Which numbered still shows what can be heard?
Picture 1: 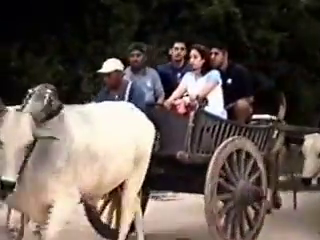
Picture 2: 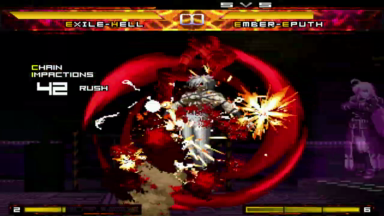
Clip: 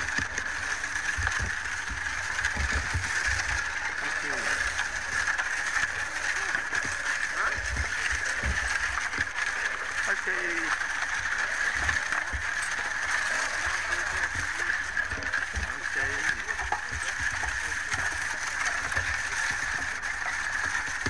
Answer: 1